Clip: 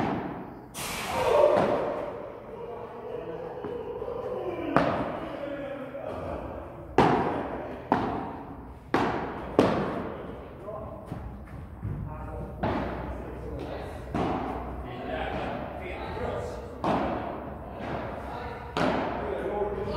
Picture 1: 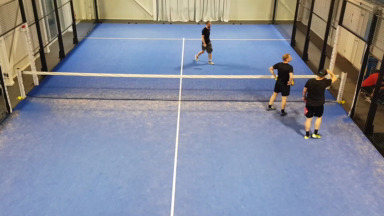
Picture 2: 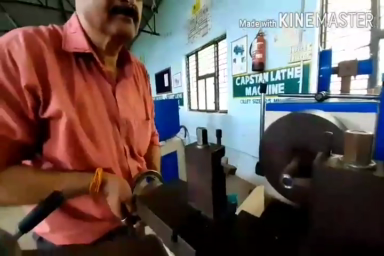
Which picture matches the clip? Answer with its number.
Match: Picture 1